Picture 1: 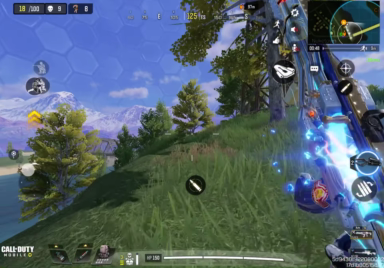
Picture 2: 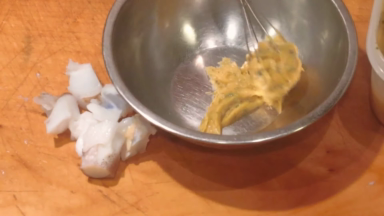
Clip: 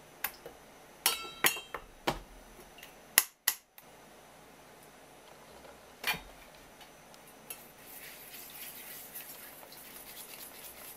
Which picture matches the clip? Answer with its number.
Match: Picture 2